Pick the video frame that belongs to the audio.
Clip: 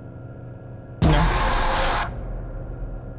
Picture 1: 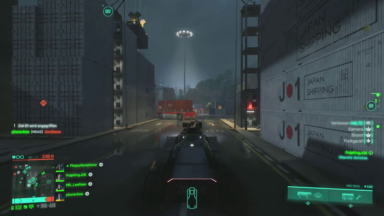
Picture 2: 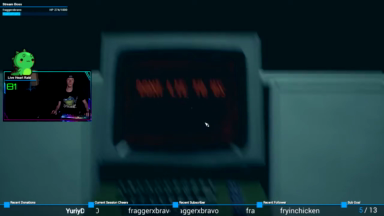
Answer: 2